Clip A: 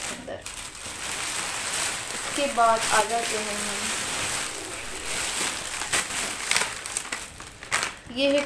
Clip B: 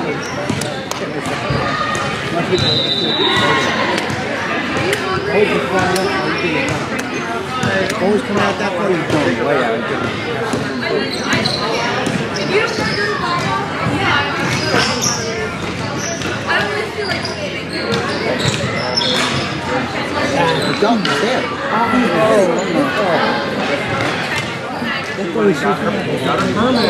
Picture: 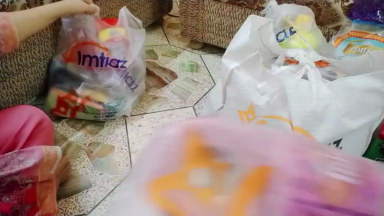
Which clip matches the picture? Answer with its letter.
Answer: A